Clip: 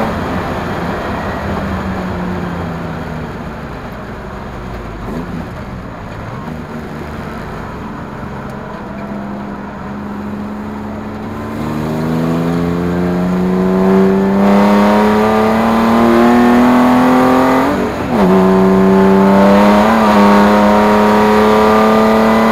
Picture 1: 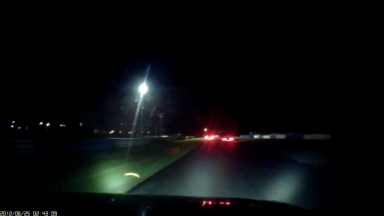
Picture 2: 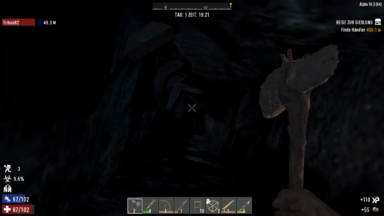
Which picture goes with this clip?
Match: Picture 1